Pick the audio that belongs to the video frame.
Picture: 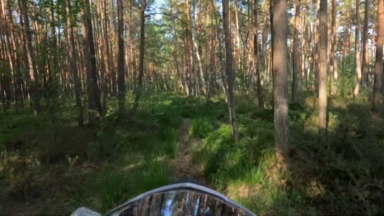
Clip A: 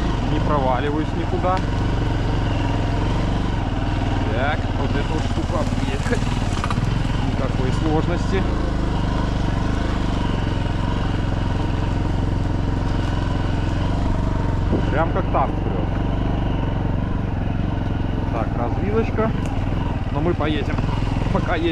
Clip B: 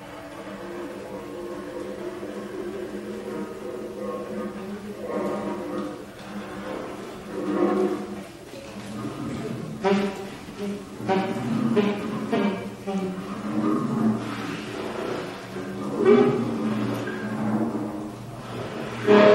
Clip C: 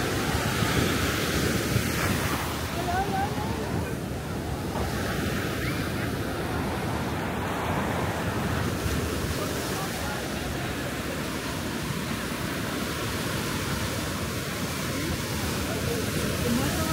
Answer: A